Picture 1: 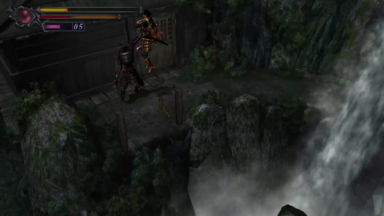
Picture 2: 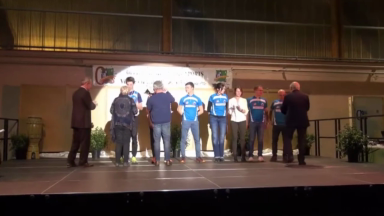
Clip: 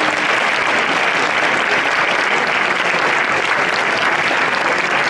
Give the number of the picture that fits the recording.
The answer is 2